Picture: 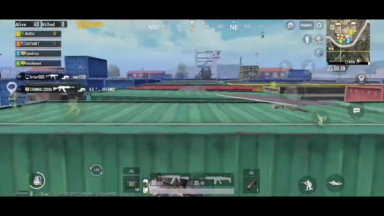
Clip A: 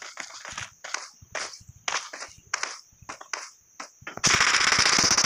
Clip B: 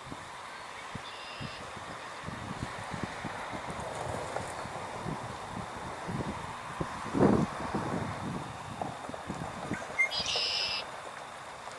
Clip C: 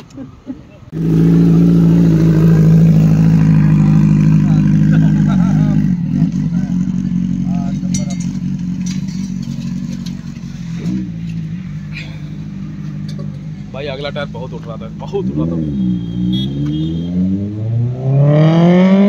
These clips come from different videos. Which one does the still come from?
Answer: A